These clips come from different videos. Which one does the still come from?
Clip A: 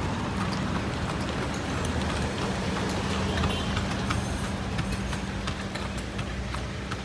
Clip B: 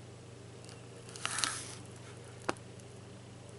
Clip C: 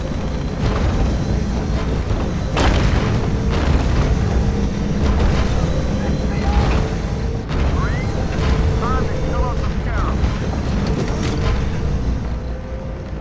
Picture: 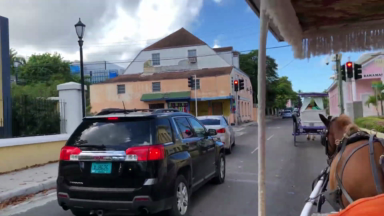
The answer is A